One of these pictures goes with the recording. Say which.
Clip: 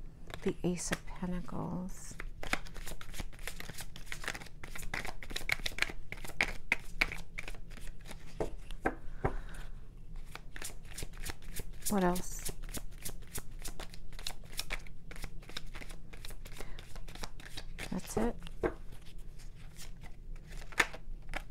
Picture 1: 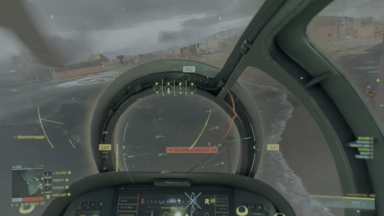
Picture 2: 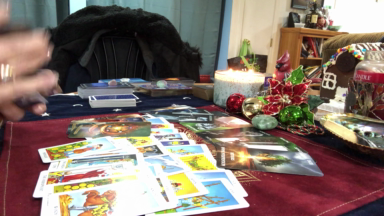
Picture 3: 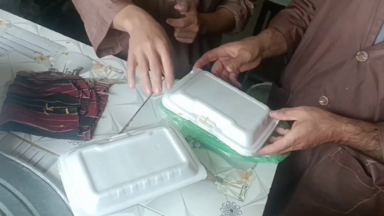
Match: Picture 2